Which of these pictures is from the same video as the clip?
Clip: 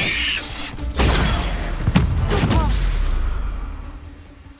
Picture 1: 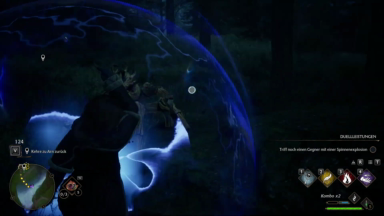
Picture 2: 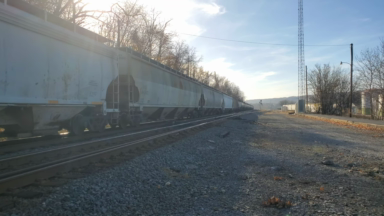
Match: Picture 1